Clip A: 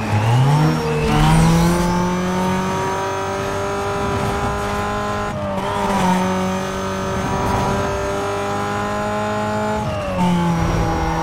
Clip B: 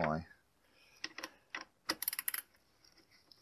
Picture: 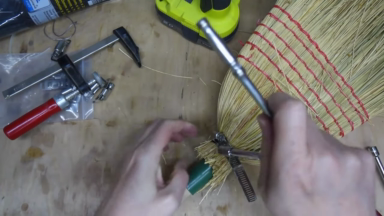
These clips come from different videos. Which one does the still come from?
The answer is B